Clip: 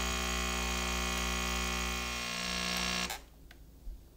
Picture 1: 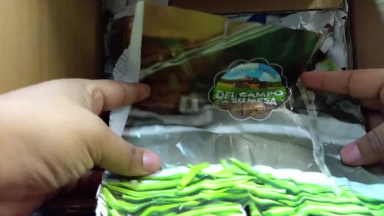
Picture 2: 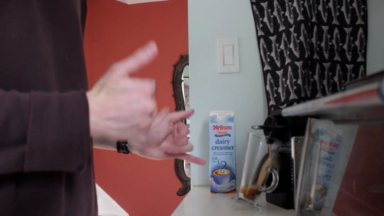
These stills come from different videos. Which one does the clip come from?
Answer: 2